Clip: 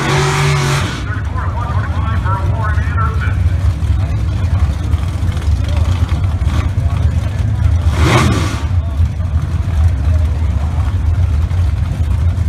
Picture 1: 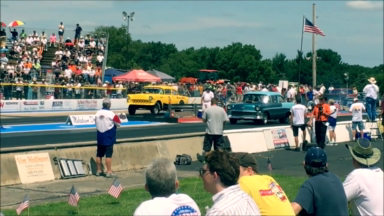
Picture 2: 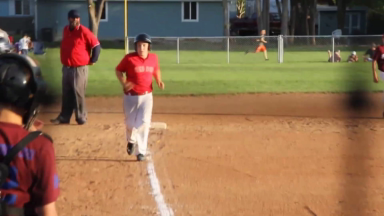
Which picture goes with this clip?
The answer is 1